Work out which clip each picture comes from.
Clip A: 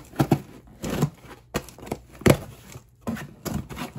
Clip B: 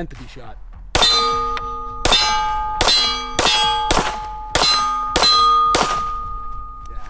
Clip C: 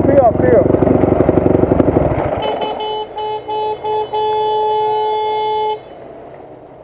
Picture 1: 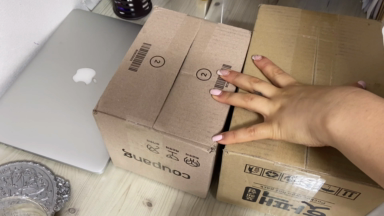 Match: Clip A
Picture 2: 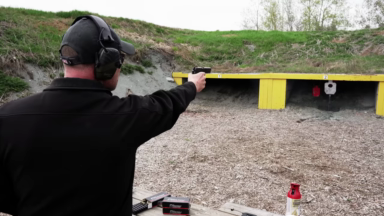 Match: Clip B